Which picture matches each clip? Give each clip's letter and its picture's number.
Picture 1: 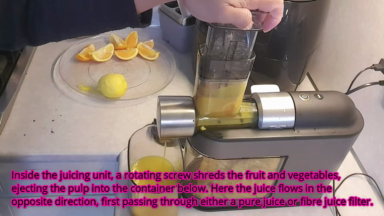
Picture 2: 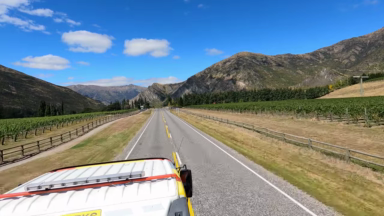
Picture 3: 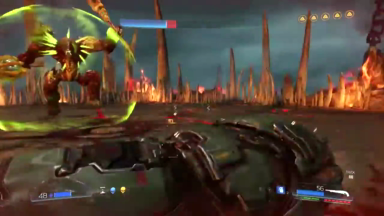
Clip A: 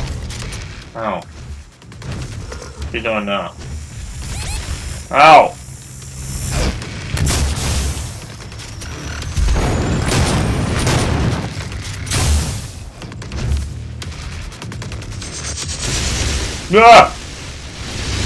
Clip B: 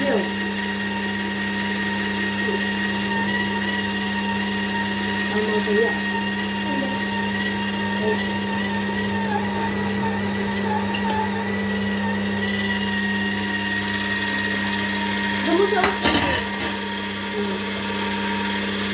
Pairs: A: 3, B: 1